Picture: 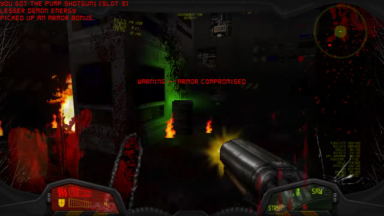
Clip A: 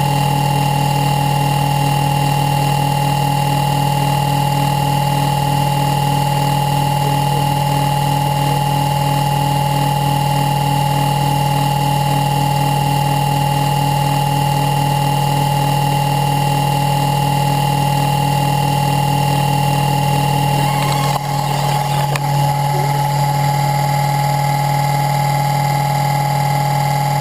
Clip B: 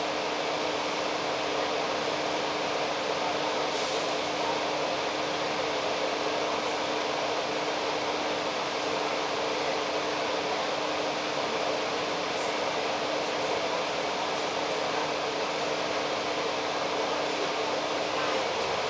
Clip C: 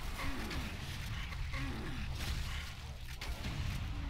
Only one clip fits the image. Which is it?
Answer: C